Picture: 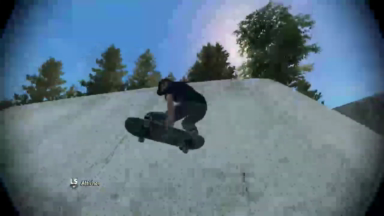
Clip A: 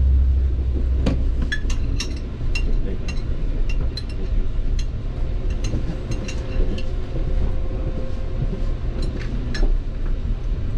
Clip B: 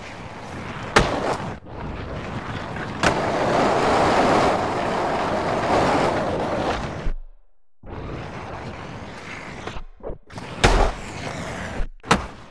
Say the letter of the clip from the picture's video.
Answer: B